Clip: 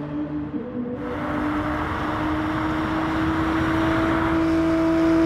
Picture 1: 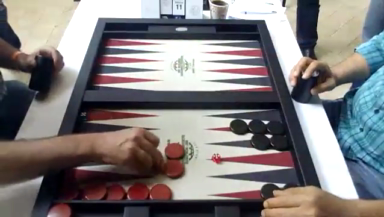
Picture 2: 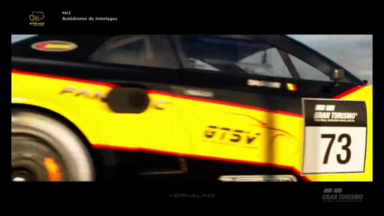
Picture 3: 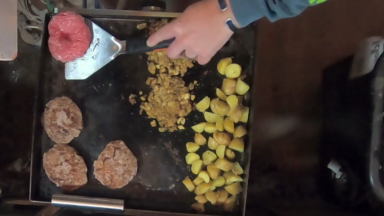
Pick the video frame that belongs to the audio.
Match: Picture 2